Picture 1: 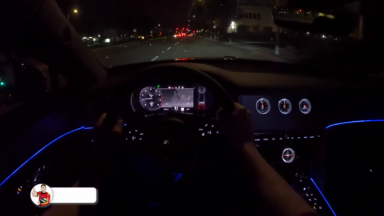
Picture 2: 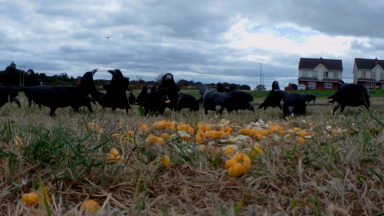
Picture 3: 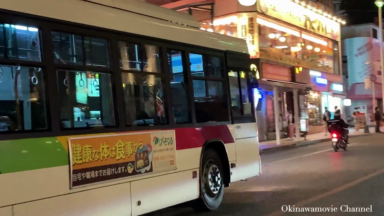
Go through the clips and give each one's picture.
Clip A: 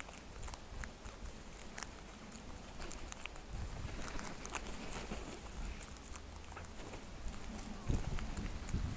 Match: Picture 2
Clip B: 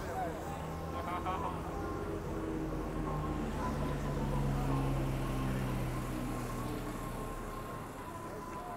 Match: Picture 3